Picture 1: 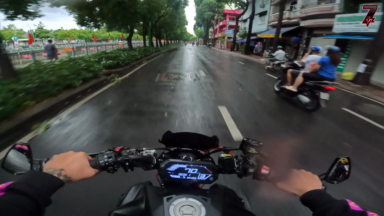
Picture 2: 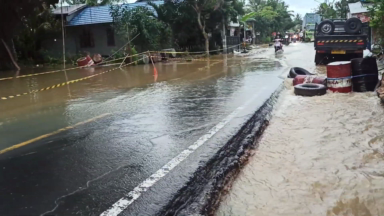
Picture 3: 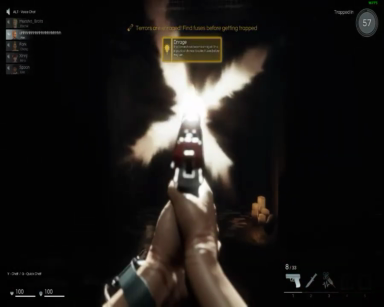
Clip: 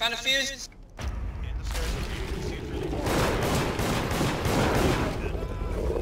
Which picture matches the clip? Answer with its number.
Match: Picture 3